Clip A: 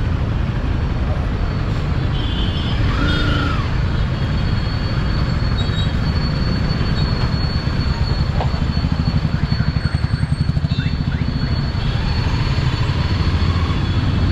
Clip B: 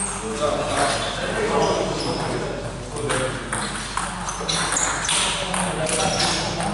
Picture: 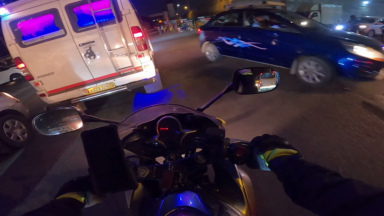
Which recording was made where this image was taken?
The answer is A